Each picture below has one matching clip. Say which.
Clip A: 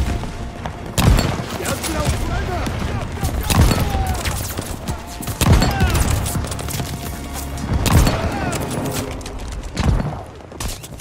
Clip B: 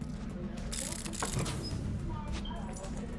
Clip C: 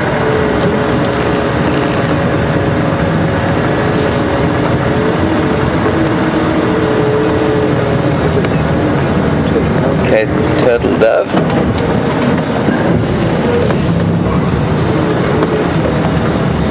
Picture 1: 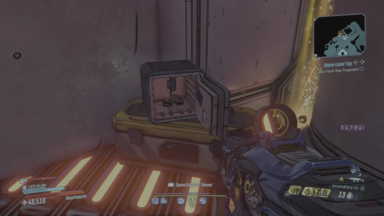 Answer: B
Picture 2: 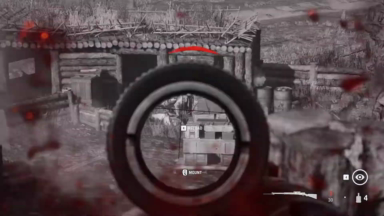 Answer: A